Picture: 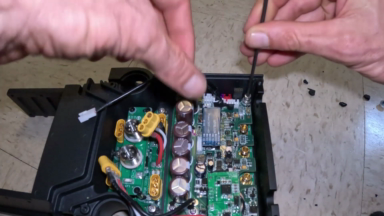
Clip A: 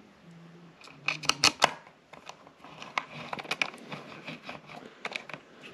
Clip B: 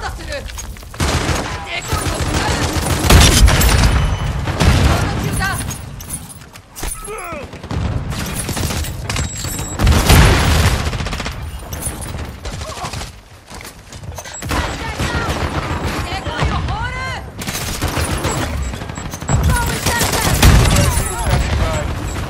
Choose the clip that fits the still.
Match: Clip A